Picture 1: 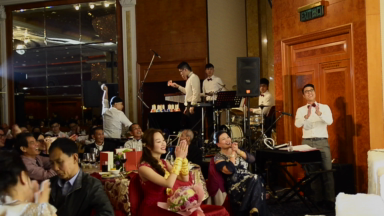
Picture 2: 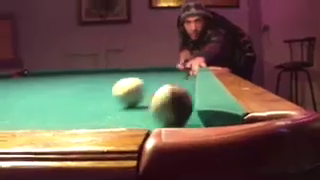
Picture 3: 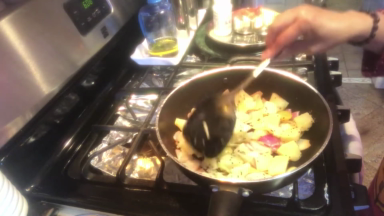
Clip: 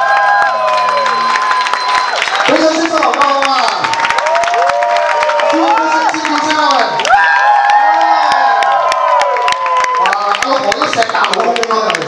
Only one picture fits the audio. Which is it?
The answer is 1